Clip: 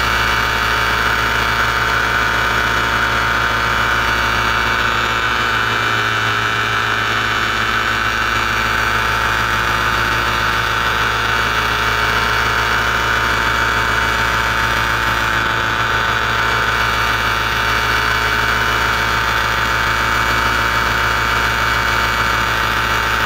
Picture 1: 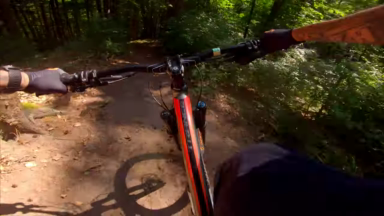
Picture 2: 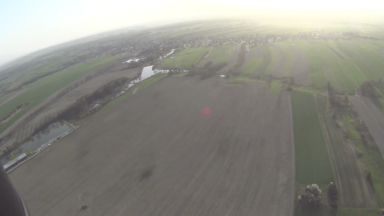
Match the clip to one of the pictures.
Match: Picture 2